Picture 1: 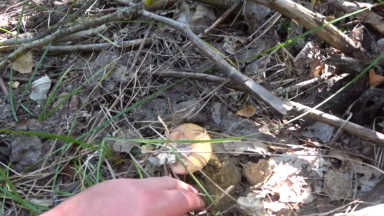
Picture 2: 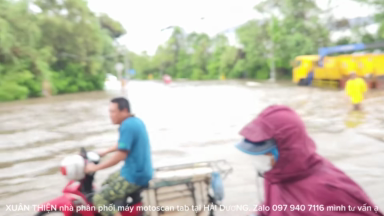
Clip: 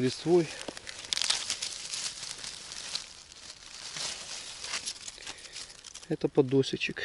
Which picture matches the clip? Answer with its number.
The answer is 1